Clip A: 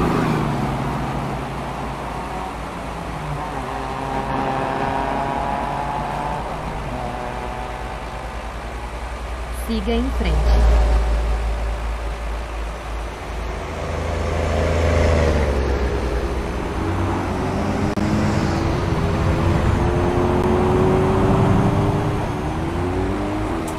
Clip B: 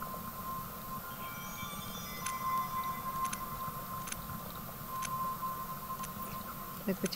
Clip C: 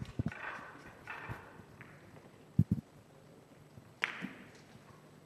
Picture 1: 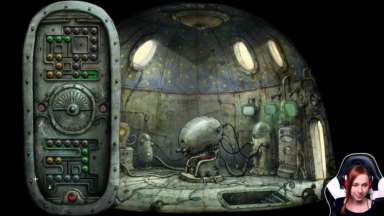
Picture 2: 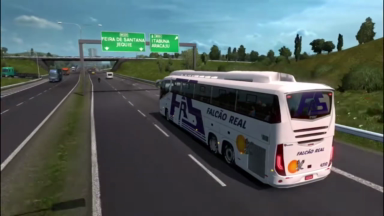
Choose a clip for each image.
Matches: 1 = B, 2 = A